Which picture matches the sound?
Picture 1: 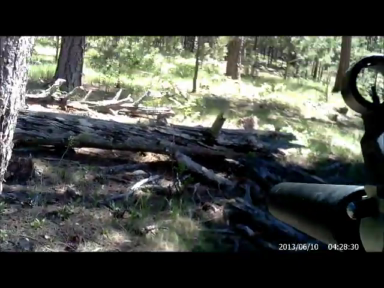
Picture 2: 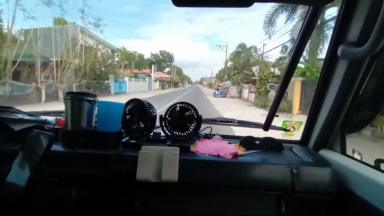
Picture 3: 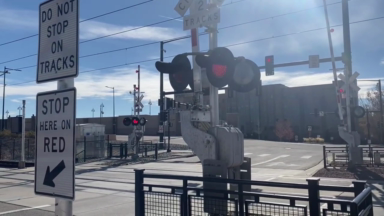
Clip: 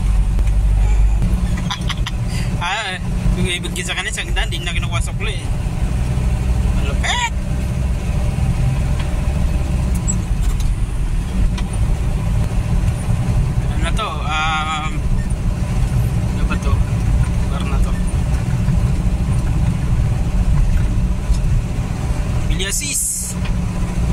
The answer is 2